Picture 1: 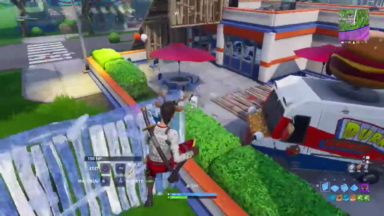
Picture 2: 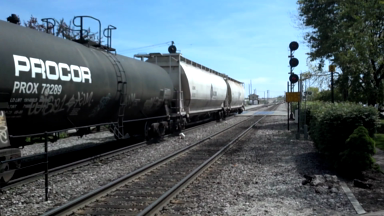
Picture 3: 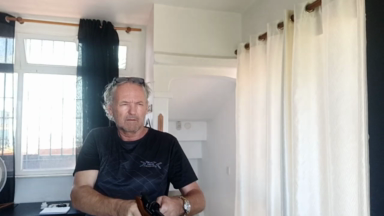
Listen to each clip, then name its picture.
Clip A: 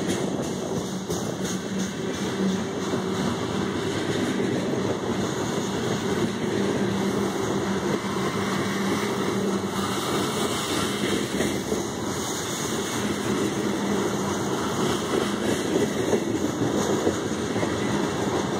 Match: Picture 2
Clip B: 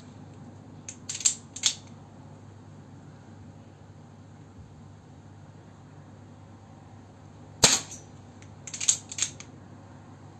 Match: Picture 3